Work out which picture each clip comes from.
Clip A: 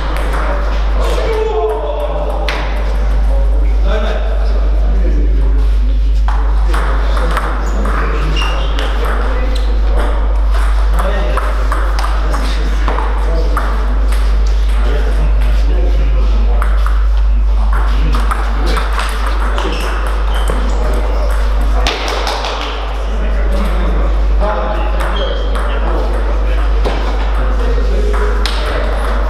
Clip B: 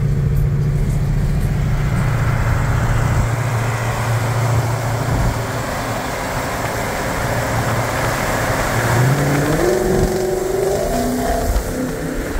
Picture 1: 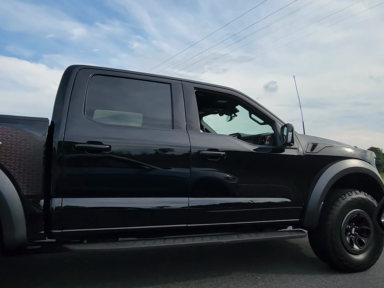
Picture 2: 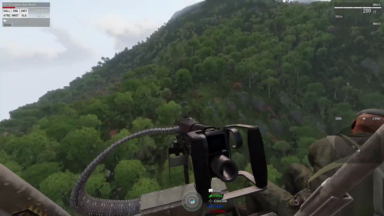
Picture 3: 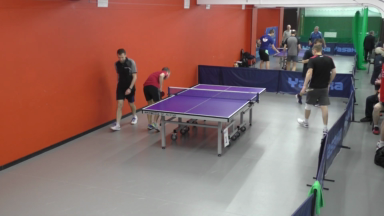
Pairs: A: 3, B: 1